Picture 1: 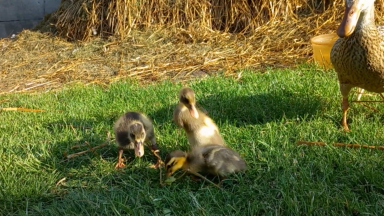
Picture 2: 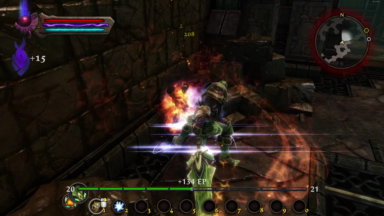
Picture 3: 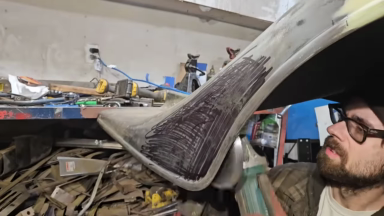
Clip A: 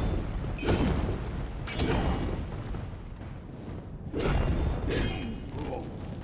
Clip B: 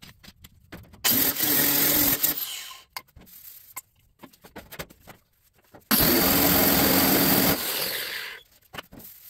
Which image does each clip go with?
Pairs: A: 2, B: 3